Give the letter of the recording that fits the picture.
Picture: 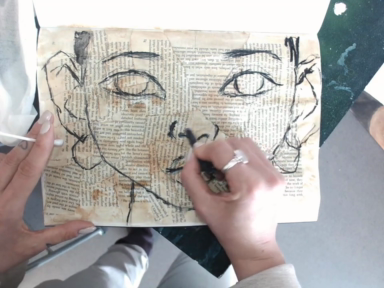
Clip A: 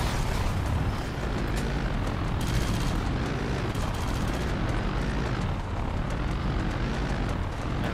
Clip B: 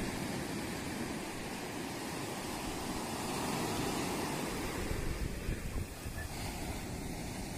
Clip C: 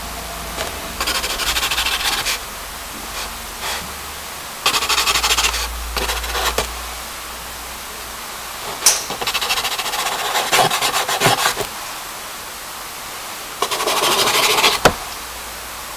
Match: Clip C